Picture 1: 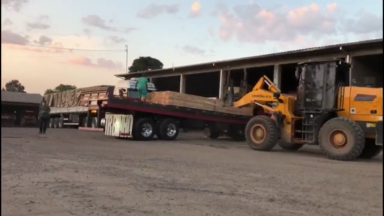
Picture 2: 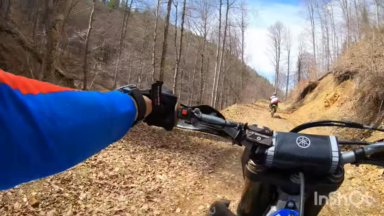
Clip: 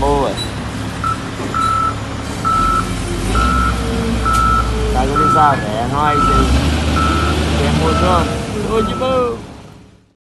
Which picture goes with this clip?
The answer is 1